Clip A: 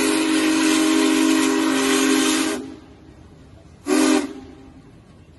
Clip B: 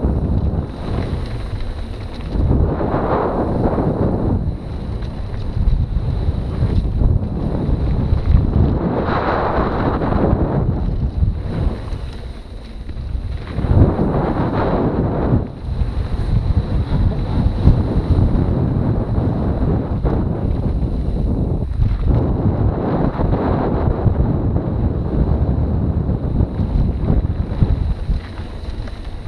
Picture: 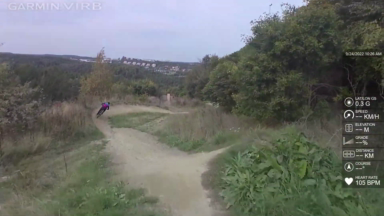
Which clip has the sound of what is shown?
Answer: B